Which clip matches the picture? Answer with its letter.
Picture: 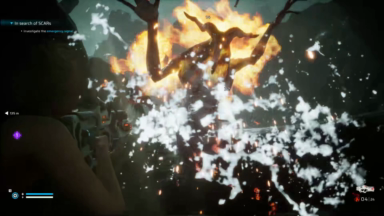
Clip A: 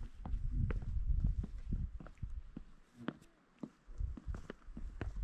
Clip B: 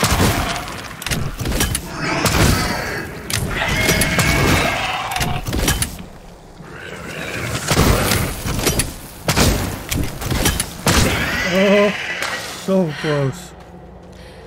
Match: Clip B